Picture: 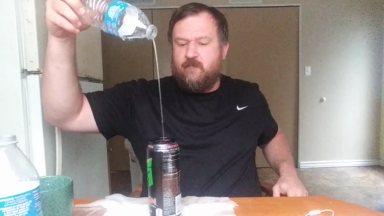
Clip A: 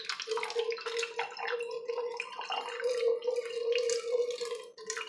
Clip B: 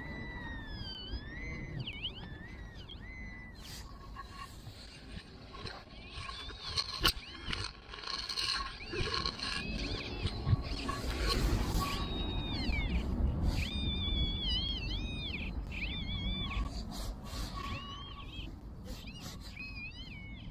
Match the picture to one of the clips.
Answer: A